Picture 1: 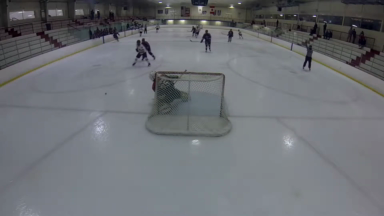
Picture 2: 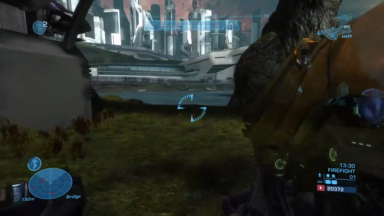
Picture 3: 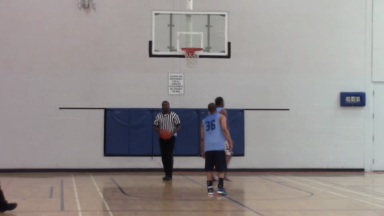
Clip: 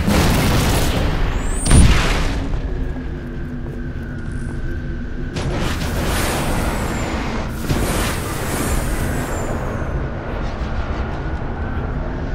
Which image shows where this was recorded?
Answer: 2